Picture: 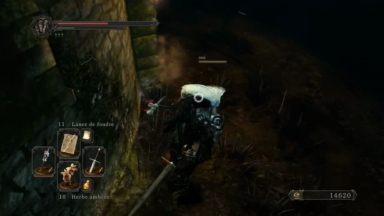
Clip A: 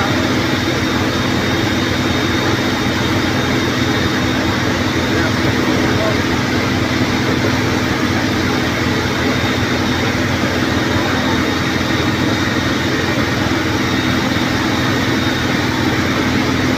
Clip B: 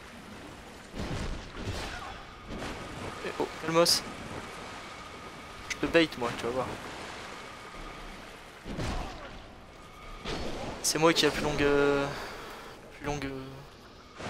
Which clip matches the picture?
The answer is B